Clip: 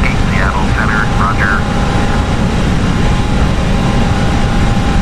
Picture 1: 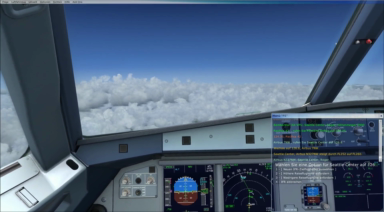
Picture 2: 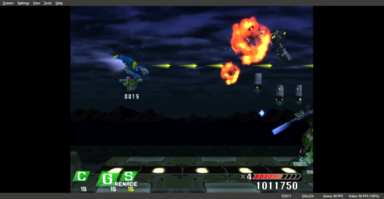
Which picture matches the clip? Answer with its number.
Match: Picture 1